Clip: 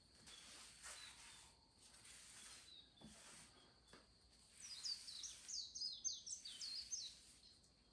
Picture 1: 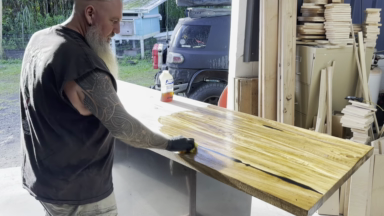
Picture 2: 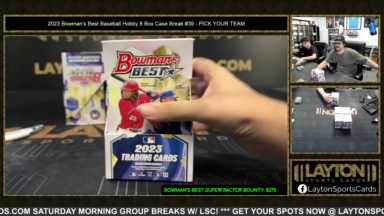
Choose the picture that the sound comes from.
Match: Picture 1